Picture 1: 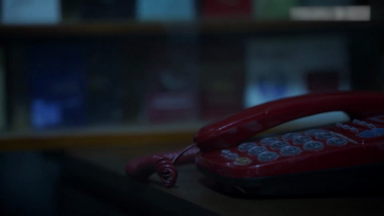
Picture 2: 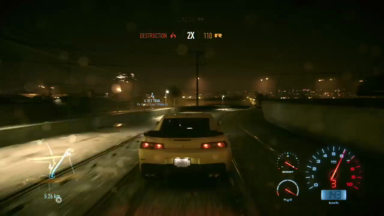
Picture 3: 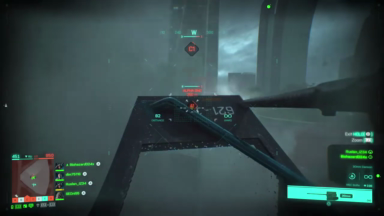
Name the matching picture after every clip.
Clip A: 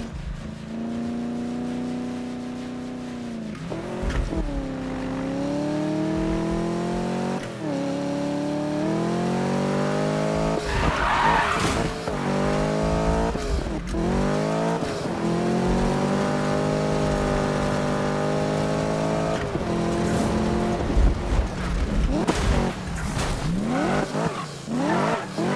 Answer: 2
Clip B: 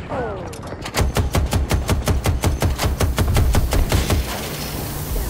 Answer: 3